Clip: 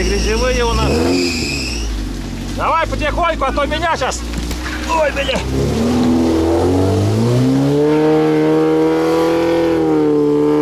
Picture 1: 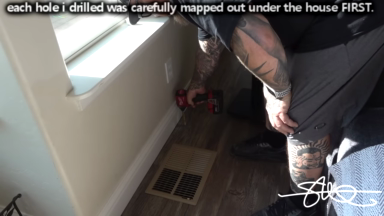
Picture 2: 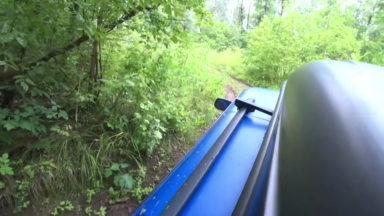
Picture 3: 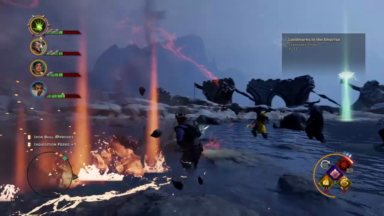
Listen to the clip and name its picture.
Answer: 2